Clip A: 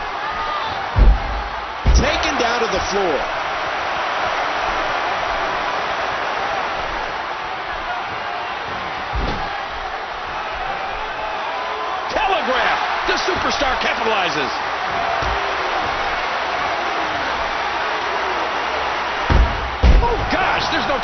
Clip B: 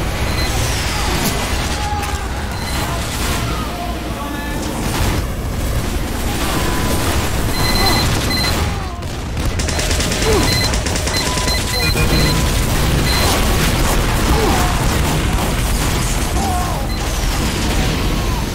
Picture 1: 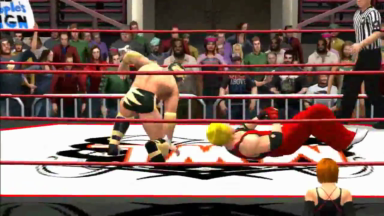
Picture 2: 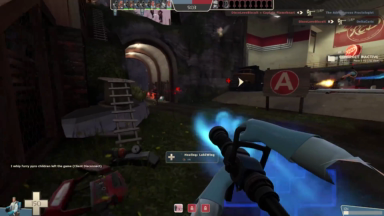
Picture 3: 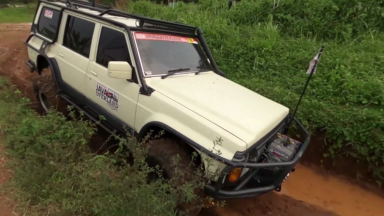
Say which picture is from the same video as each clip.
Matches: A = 1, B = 2